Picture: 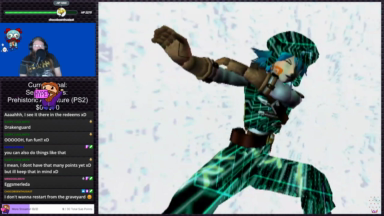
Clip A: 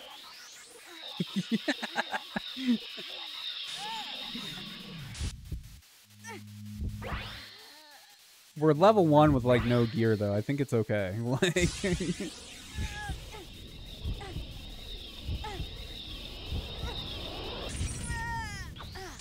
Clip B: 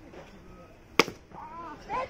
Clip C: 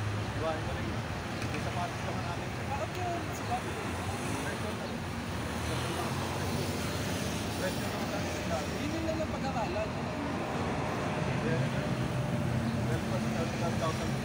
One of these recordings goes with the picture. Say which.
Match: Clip A